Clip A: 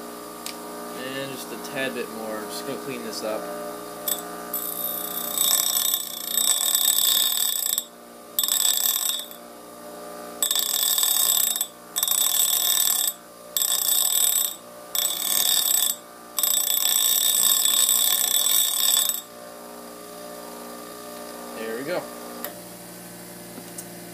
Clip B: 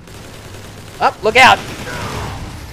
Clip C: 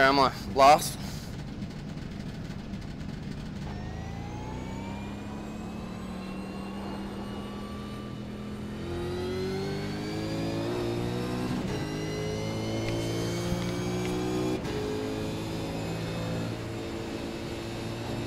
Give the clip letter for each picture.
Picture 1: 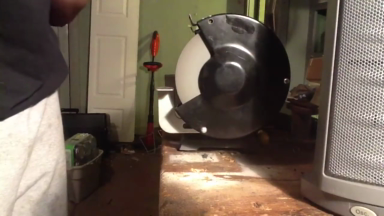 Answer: A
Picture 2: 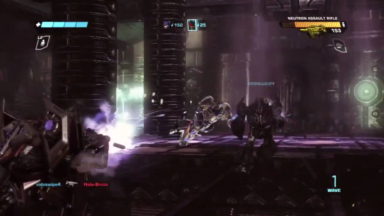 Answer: B